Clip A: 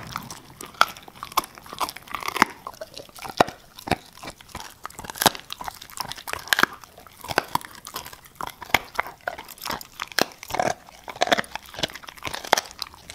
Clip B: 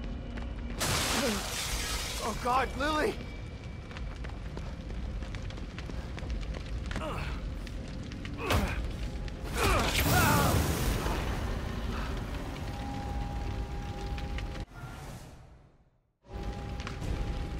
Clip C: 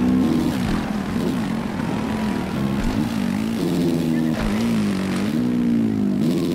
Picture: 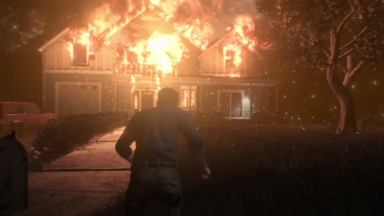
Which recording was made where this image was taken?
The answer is B